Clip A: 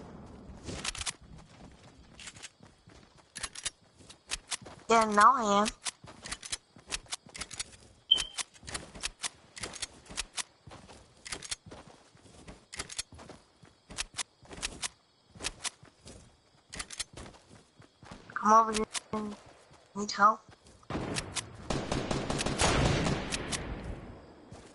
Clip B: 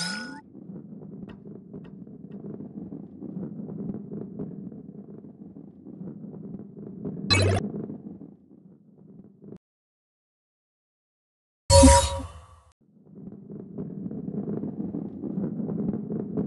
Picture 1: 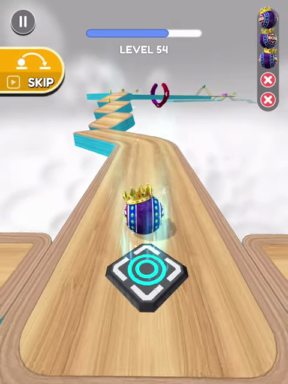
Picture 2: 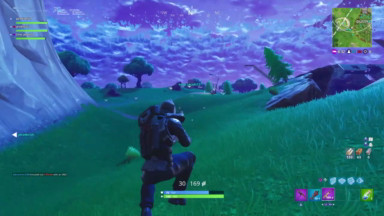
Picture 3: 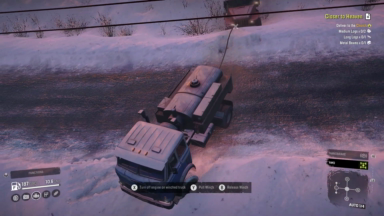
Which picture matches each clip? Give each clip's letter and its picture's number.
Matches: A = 2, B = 1